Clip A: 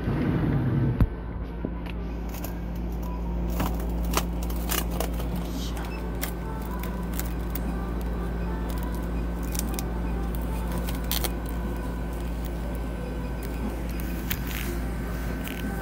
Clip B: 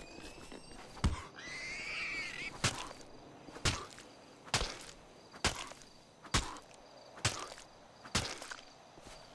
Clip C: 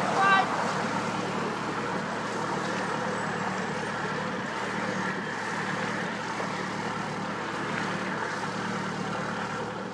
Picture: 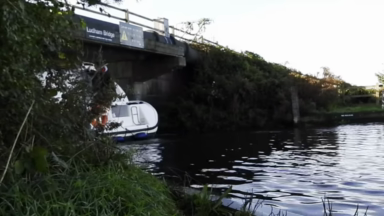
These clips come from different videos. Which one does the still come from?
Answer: C